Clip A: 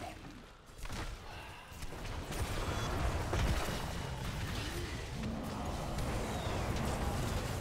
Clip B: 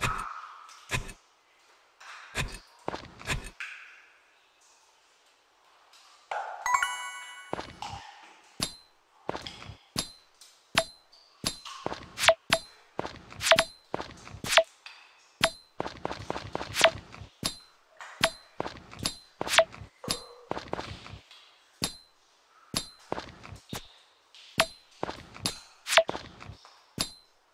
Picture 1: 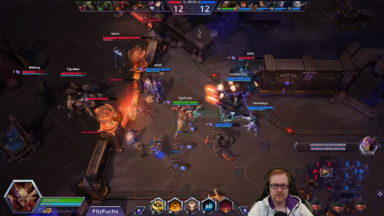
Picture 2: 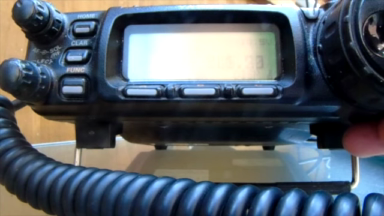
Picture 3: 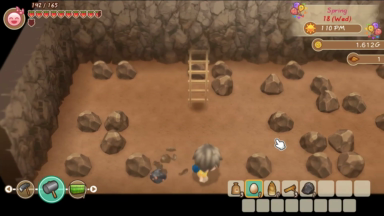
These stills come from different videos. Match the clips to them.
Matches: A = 1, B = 3